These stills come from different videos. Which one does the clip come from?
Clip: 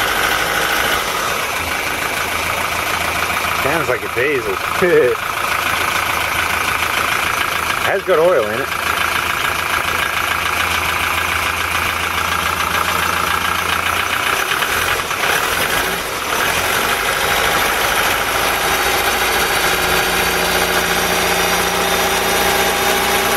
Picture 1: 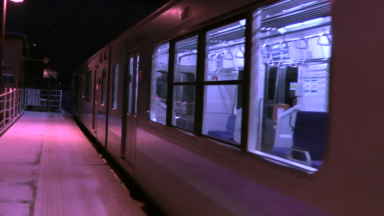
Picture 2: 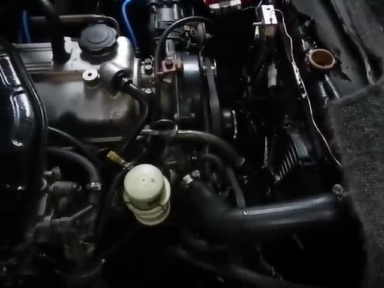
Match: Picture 2